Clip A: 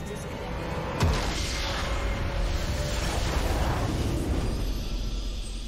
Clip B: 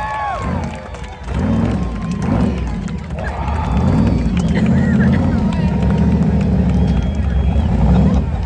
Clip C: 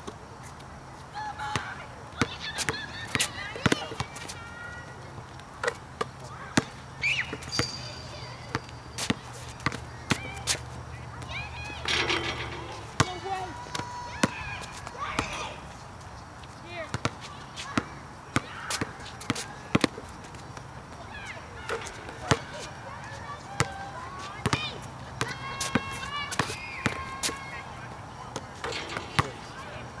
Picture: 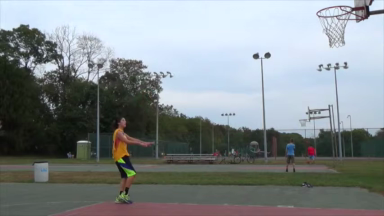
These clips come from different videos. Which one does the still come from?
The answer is C